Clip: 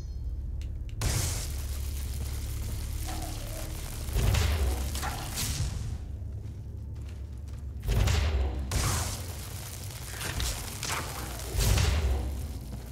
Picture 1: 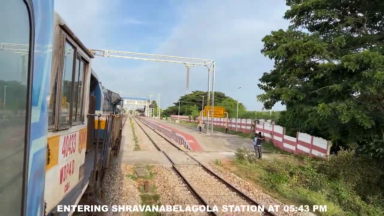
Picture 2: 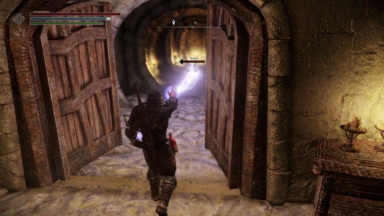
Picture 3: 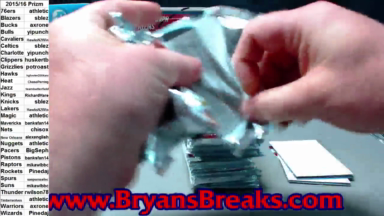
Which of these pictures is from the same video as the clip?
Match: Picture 2